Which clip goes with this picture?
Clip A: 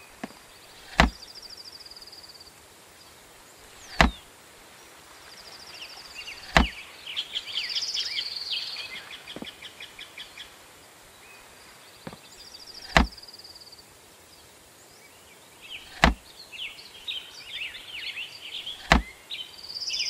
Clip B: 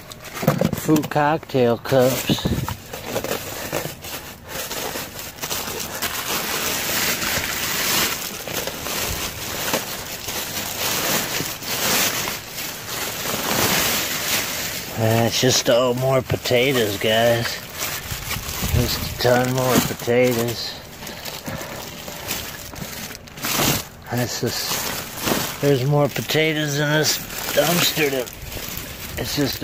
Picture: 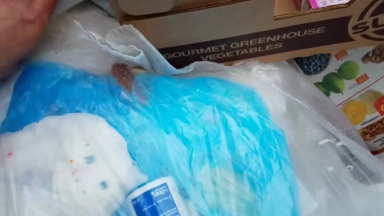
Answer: B